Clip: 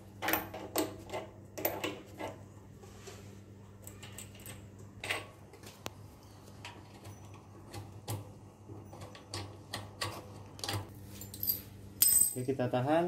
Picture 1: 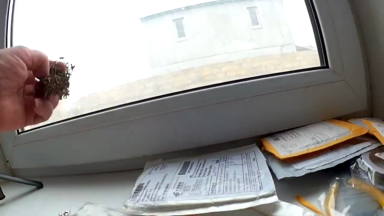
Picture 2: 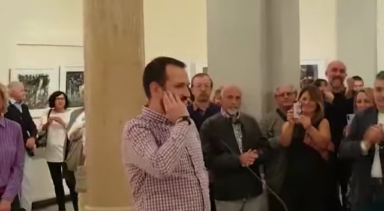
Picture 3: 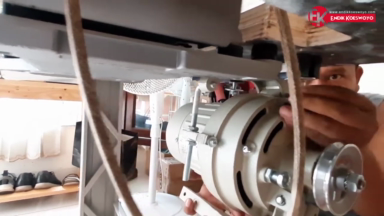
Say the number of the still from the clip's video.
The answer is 3